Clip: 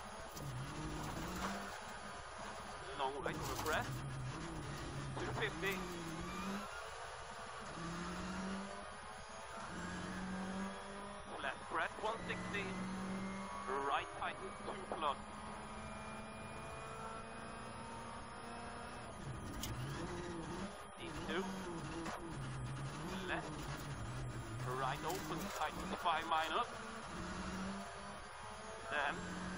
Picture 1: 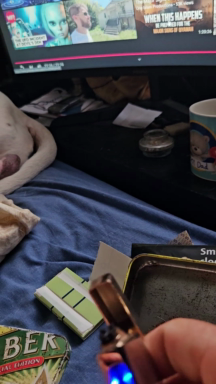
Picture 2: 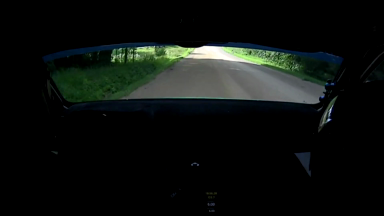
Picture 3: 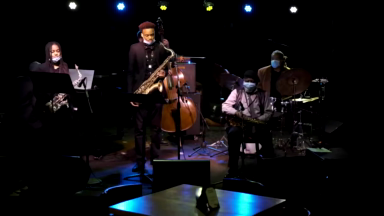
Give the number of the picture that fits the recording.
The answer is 2